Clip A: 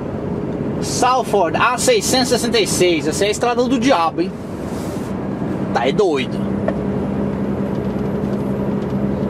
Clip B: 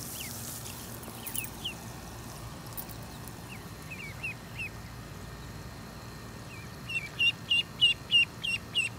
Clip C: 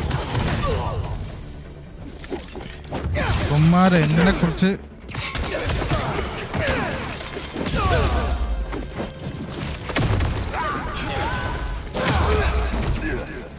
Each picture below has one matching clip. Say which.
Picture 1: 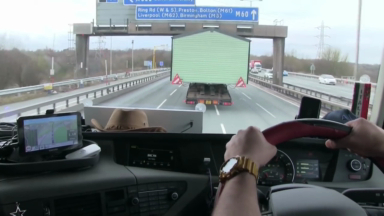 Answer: A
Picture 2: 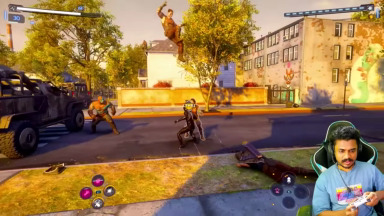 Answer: C